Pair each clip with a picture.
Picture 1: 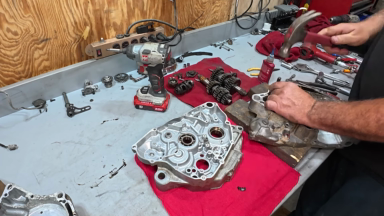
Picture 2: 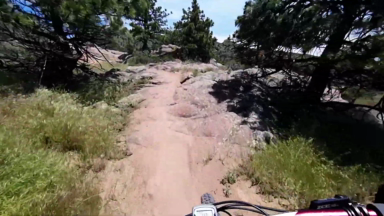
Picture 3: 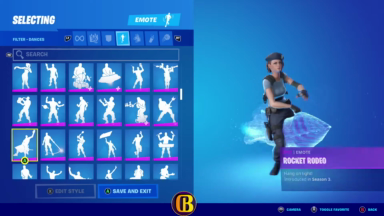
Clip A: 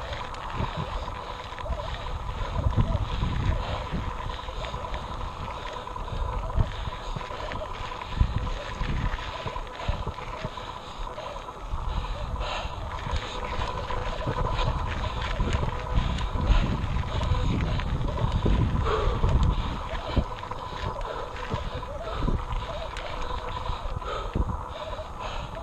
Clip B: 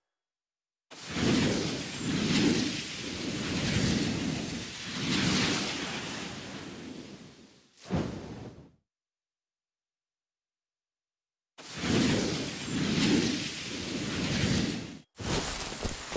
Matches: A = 2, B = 3